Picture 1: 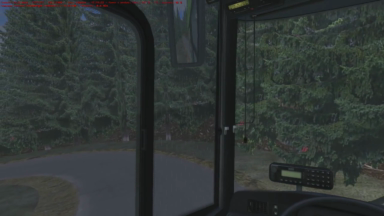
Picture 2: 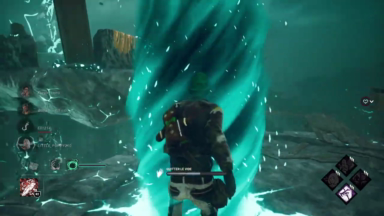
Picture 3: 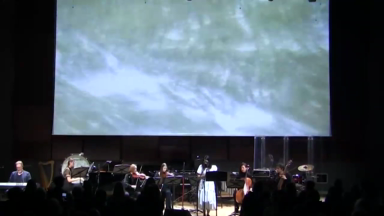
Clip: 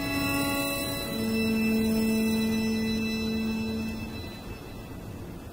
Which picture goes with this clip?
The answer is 3